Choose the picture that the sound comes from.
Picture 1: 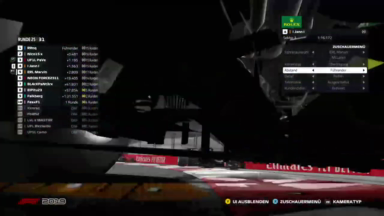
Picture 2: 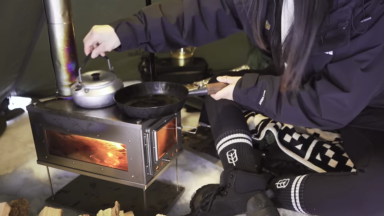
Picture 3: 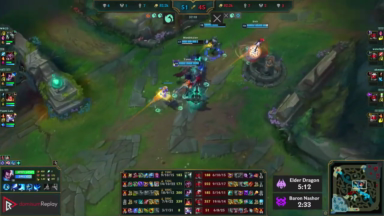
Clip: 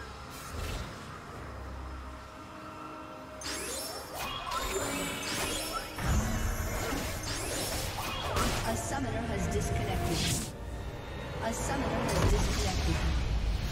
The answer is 3